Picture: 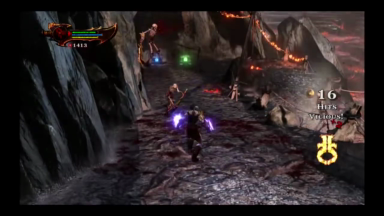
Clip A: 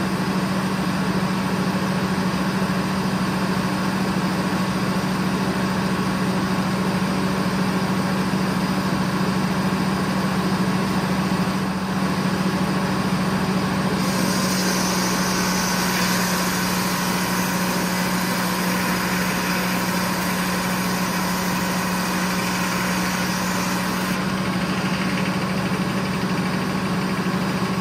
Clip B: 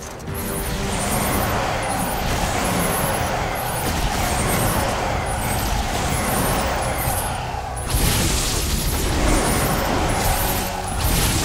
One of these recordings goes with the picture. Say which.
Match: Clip B